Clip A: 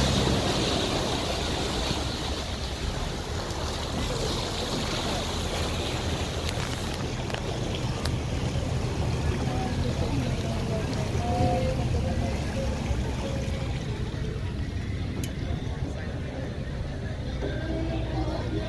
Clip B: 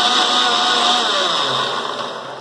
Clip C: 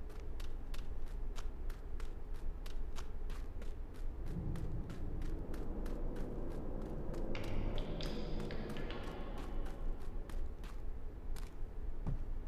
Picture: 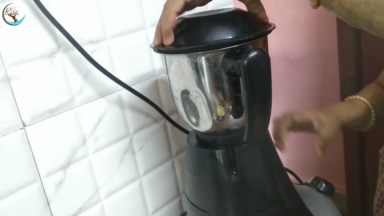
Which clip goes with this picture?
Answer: B